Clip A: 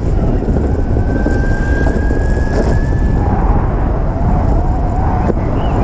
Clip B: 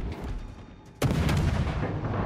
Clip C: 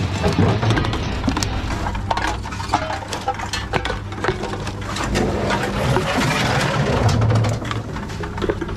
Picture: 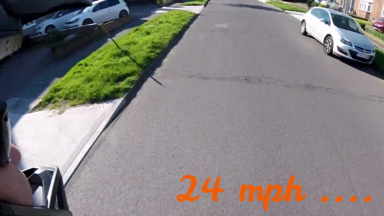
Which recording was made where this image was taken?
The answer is A